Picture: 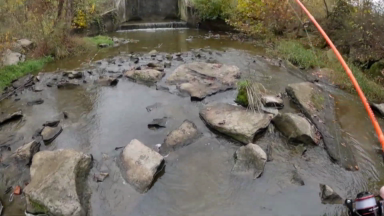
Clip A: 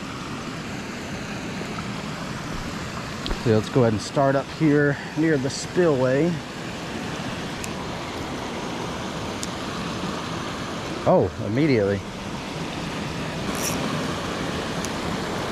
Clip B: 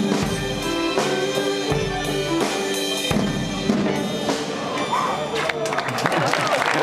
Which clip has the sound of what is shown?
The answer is A